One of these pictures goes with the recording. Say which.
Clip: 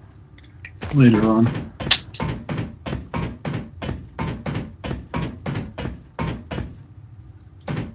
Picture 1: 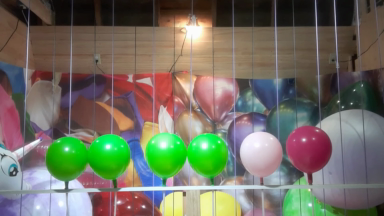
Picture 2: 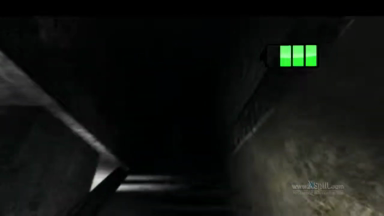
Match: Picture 2